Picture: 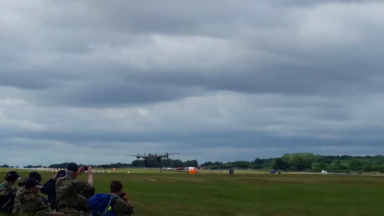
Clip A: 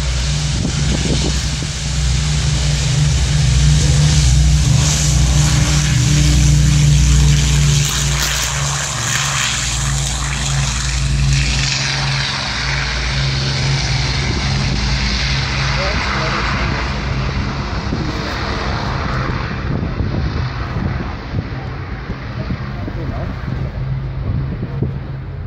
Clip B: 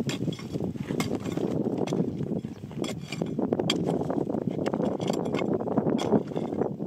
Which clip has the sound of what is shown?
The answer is A